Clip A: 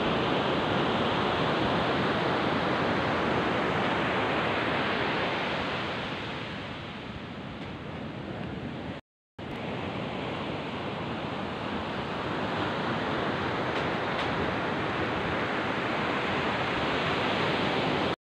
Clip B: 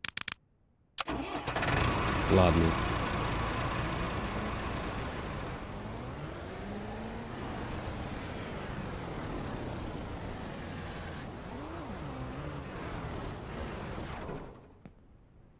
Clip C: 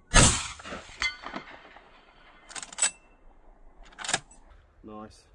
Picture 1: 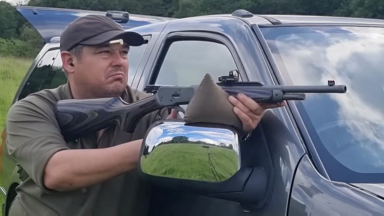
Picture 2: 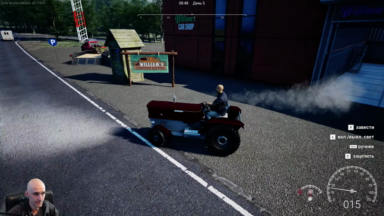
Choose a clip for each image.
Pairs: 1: C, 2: B